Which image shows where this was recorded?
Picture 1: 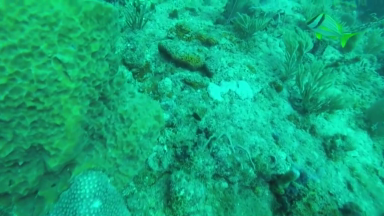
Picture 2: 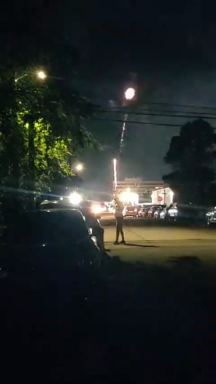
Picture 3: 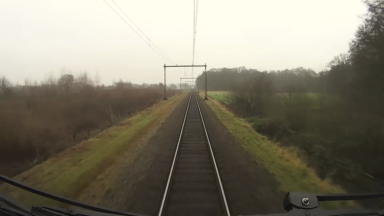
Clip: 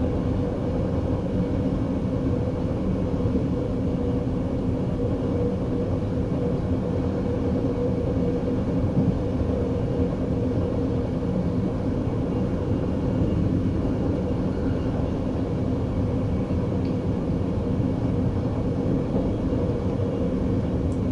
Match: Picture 3